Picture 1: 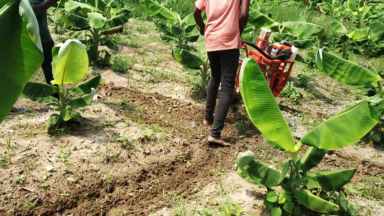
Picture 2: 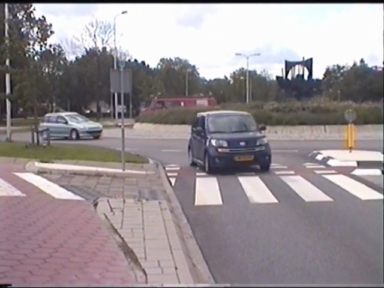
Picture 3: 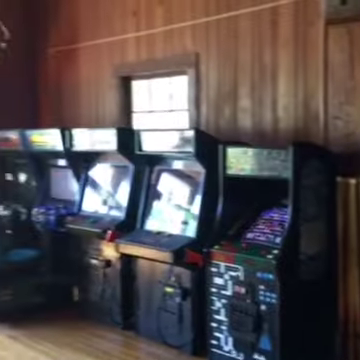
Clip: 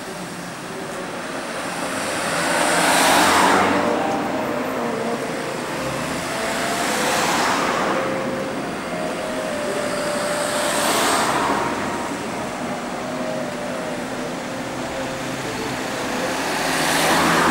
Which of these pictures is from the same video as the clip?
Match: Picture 2